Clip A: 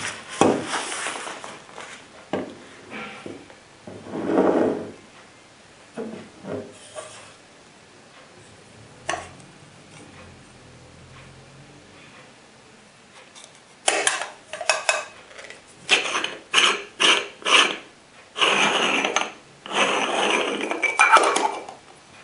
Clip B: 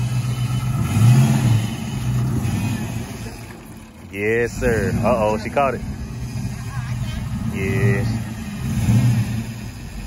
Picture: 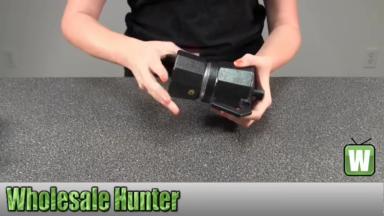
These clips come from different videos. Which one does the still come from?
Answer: A